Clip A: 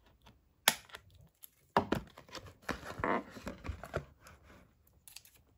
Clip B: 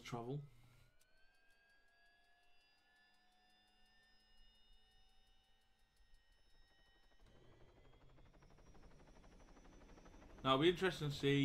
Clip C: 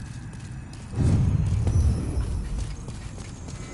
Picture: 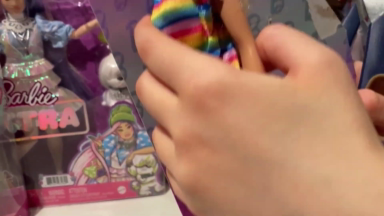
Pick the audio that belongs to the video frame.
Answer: A